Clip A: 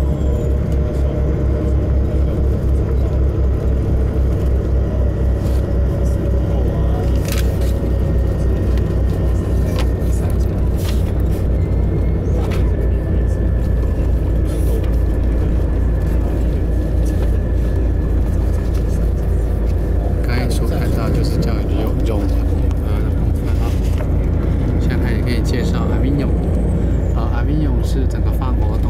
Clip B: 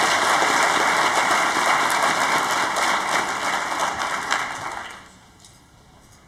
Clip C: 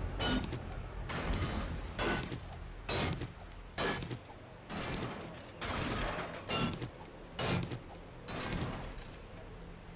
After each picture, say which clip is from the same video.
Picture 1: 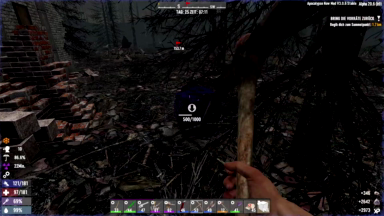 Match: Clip C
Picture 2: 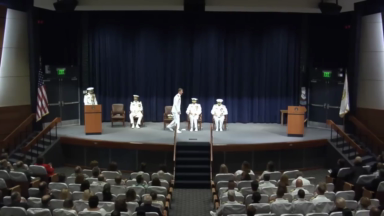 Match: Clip B